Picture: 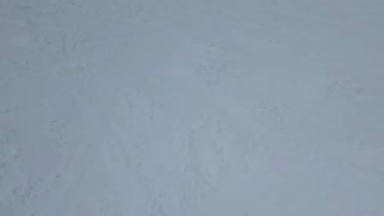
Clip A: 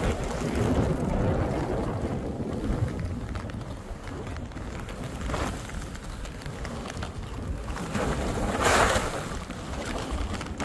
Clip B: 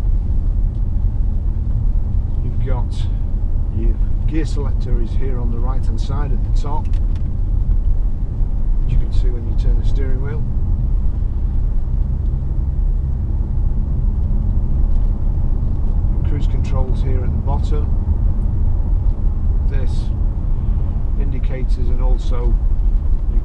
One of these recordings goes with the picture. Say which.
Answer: A